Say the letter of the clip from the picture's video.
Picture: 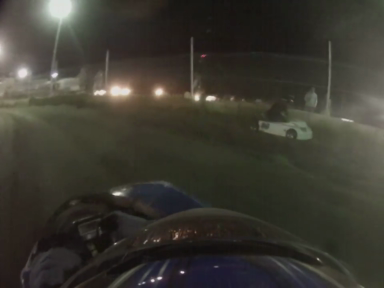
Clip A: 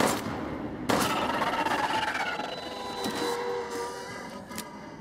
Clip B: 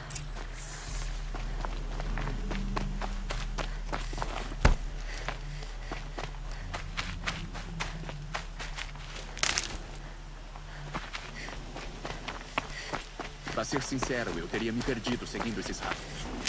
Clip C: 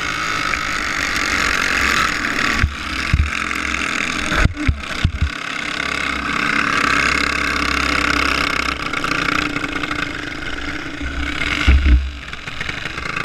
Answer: C